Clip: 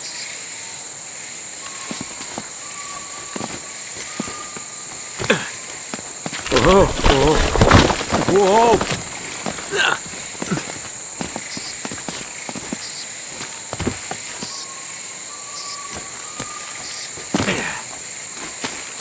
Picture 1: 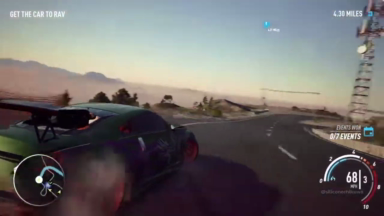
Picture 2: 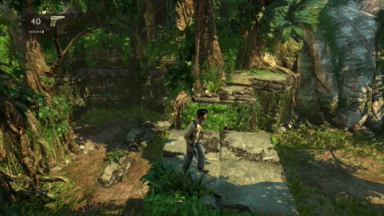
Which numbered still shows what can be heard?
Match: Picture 2